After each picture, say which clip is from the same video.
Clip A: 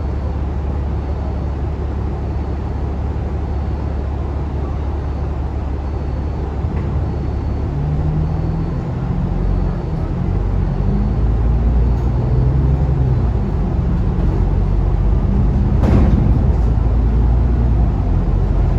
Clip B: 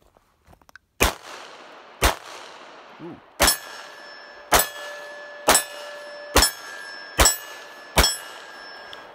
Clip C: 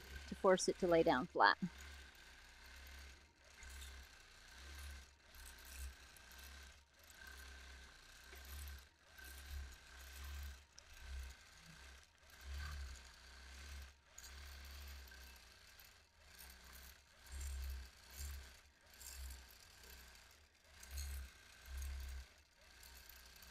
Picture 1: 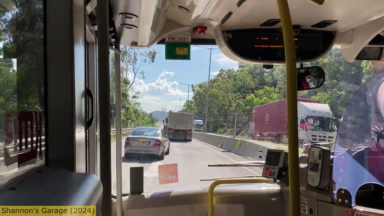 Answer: A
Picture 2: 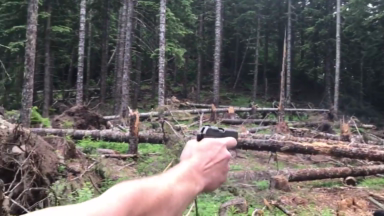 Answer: B